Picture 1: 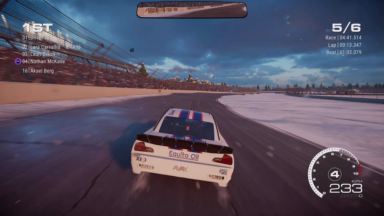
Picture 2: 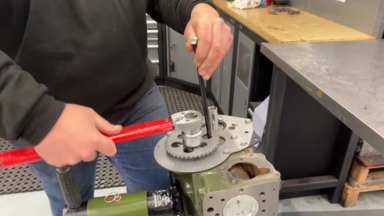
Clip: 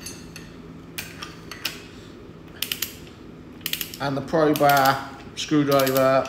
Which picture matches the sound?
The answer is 2